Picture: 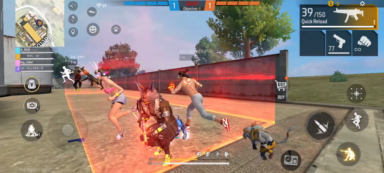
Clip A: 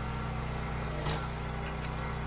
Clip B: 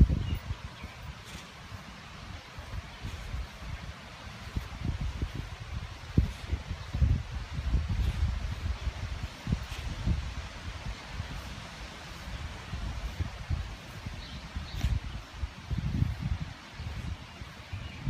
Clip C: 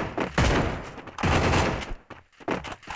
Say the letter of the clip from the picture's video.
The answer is C